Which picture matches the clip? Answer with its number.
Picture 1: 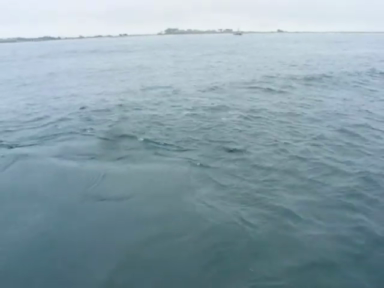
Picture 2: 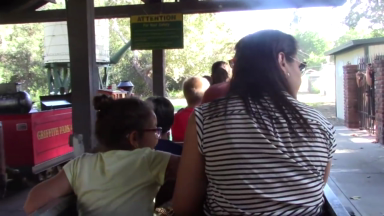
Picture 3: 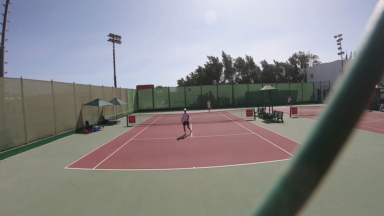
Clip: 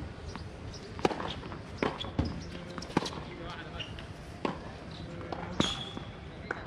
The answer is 3